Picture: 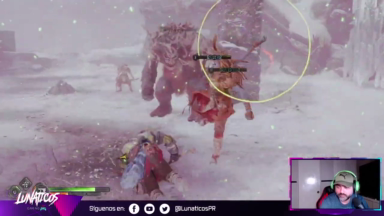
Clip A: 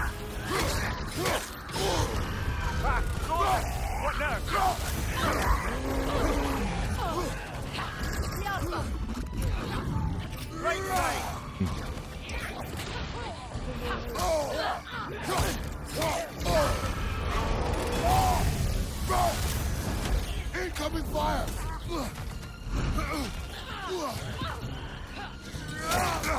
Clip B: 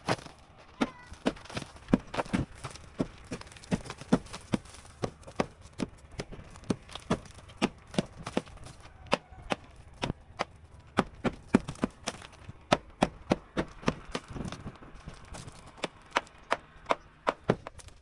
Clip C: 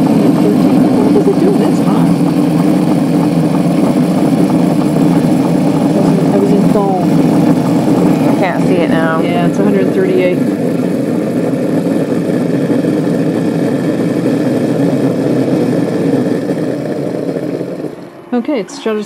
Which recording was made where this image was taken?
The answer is A